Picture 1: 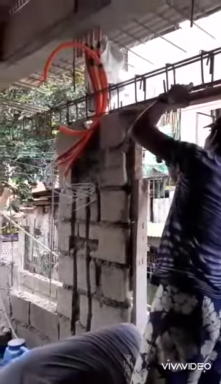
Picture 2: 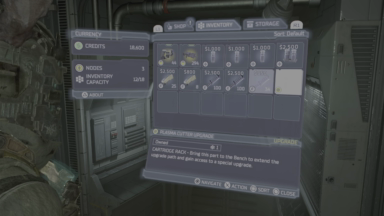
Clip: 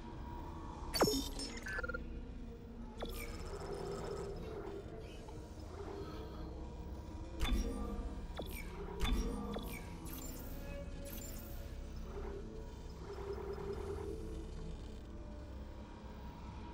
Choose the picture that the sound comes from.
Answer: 2